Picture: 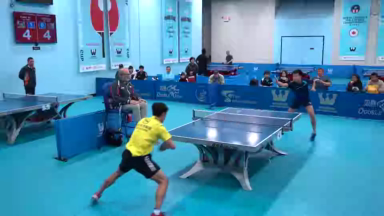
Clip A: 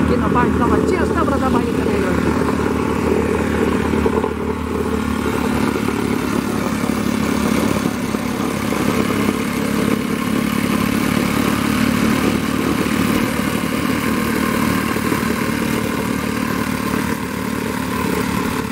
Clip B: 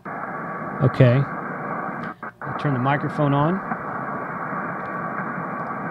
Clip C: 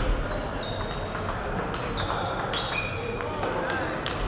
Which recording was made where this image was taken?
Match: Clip C